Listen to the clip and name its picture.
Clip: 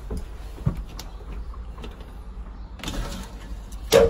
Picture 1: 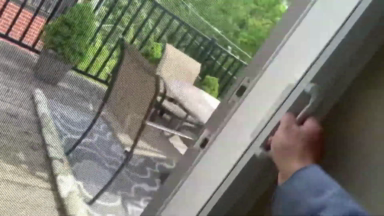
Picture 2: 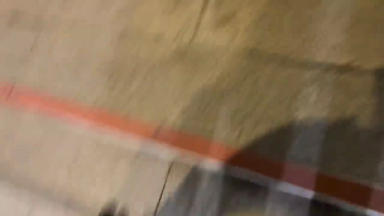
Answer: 1